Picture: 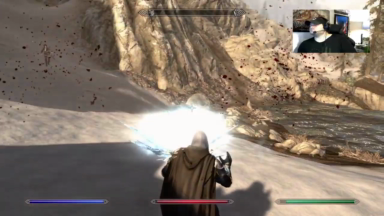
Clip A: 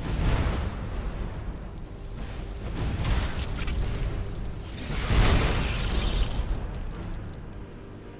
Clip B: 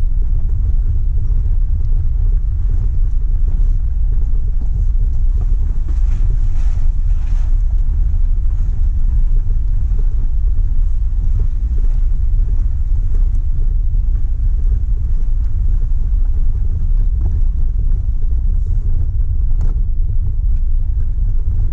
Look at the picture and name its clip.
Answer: A